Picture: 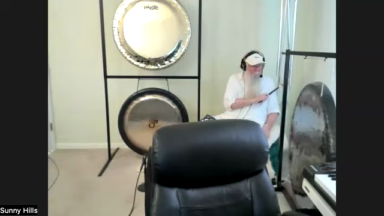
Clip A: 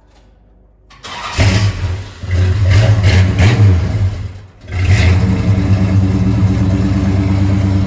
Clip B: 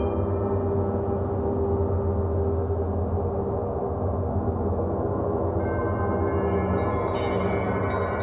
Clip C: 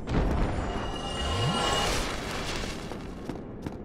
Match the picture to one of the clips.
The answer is B